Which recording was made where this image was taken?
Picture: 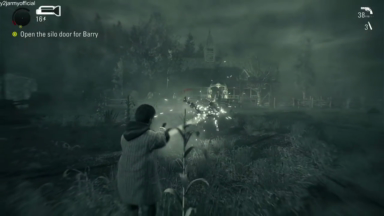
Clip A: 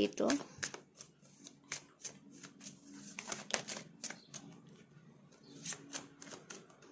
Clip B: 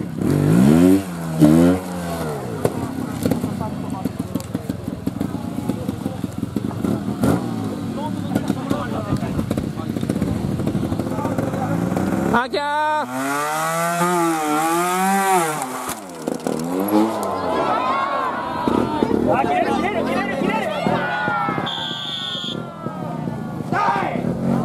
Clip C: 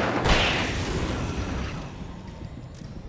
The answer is C